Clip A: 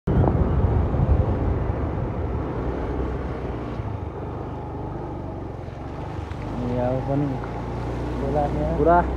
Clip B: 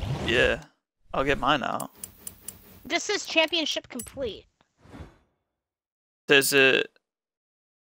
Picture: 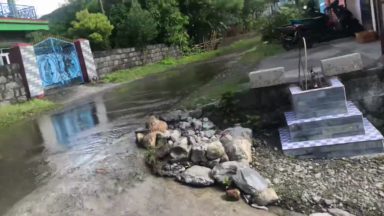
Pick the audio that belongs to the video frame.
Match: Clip A